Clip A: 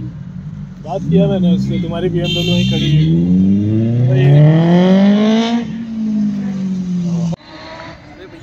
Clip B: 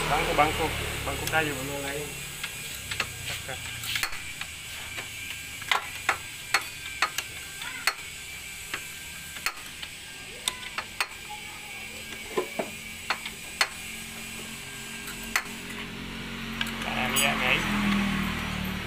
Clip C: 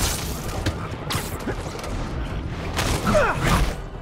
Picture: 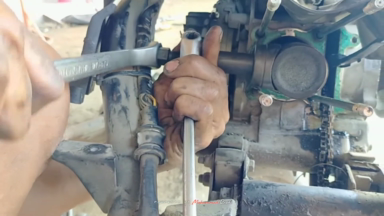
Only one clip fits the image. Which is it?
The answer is B